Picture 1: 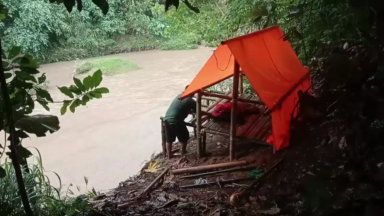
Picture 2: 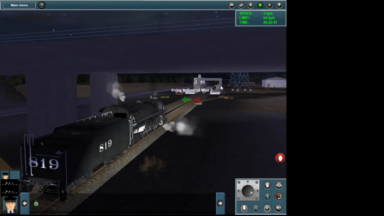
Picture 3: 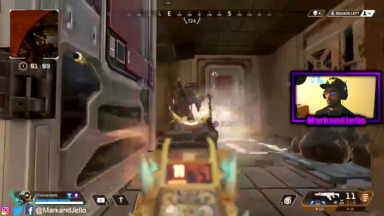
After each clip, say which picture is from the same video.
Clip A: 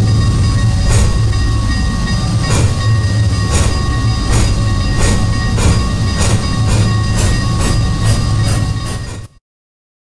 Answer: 2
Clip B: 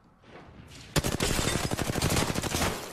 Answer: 3